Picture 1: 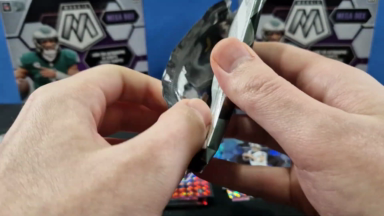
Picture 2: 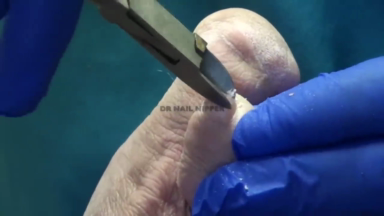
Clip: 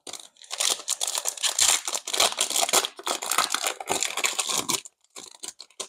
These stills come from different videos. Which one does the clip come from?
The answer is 1